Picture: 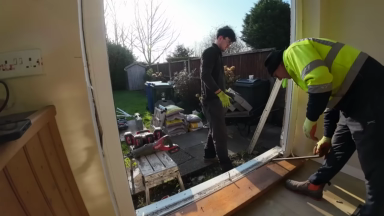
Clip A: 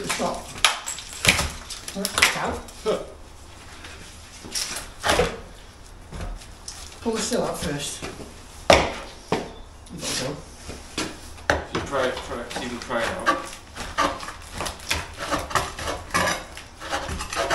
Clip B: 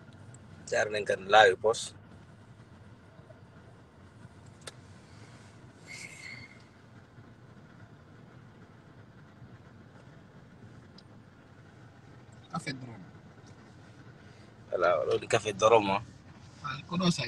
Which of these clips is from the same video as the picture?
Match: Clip A